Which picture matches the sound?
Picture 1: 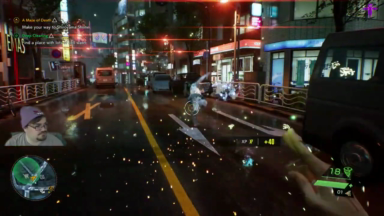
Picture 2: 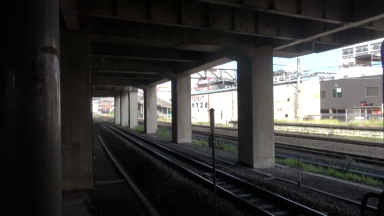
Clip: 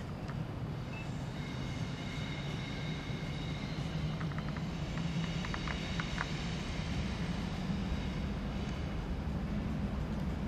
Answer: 2